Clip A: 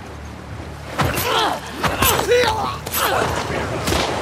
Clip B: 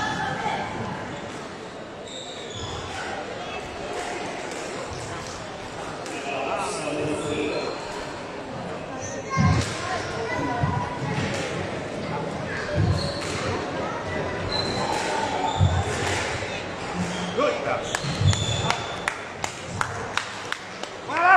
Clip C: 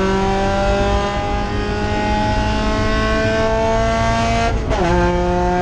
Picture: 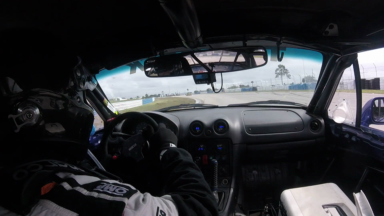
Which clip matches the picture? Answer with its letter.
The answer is C